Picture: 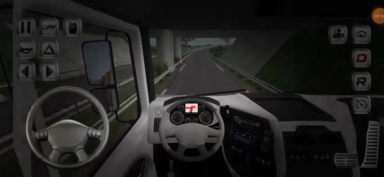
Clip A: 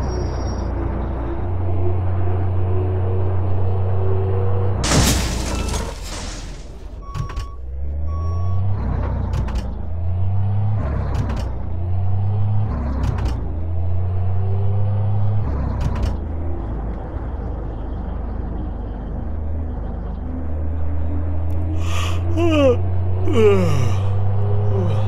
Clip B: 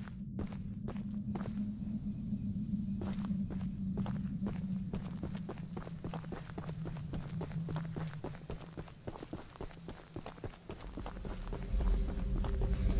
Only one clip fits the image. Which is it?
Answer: A